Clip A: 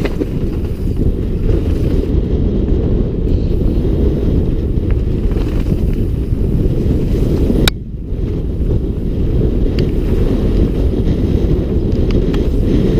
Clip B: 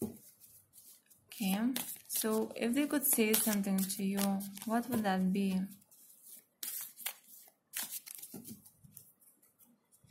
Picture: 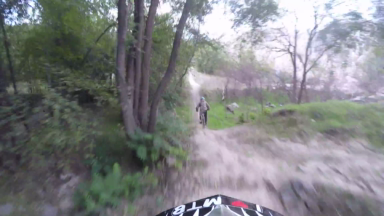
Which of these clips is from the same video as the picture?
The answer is A